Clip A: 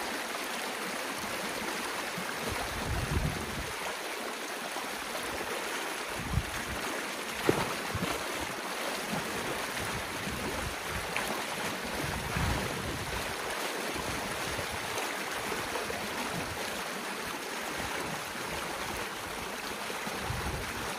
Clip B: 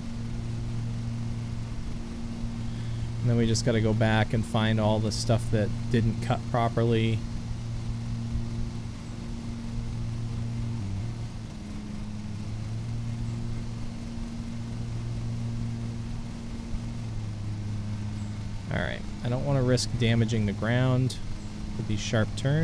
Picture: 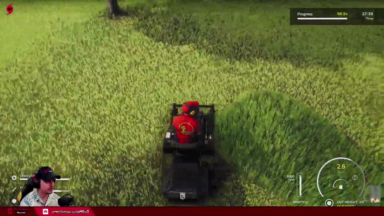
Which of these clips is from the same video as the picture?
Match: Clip B